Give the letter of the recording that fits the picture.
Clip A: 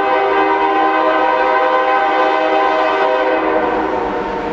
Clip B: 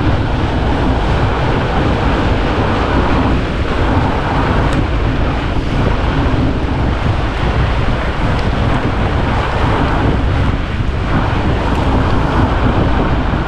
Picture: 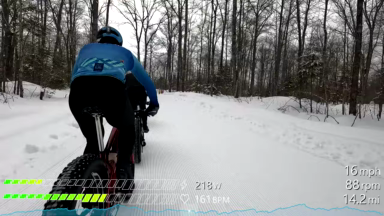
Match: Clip B